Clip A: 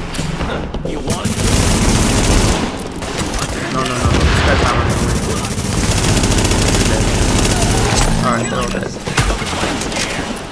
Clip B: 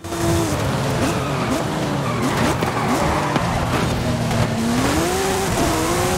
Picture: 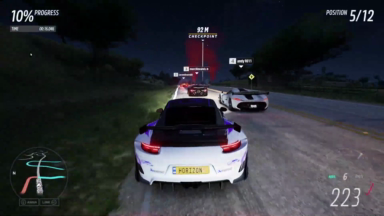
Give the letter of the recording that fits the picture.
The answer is B